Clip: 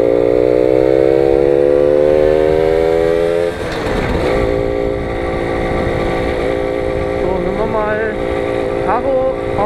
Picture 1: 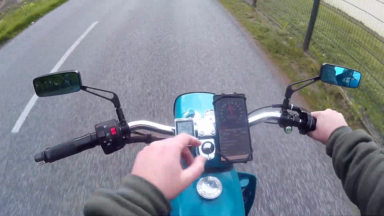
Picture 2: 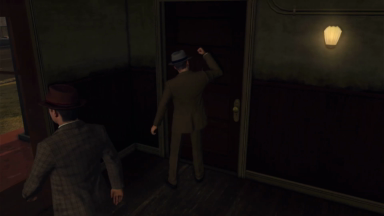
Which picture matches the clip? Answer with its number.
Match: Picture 1